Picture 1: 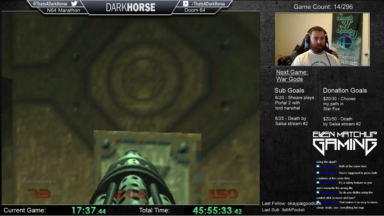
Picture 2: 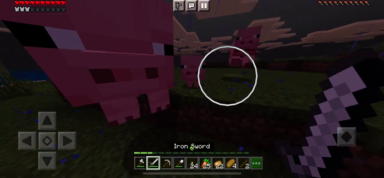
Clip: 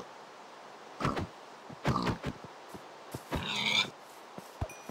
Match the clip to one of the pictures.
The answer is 2